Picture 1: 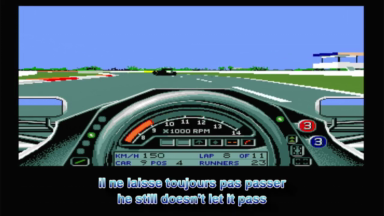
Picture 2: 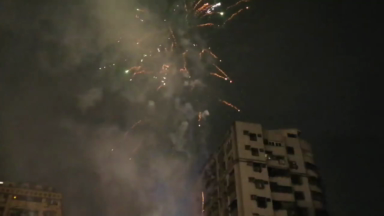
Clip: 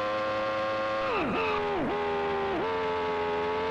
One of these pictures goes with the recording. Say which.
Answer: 1